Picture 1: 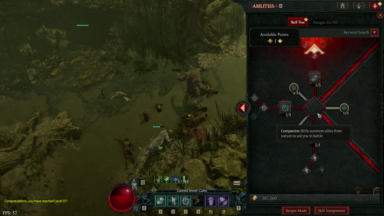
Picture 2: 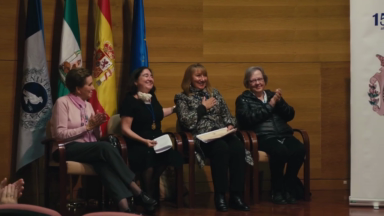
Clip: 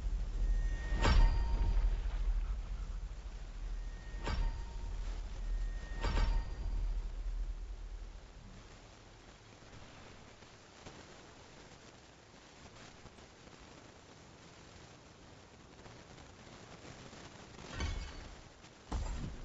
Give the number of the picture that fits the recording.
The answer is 1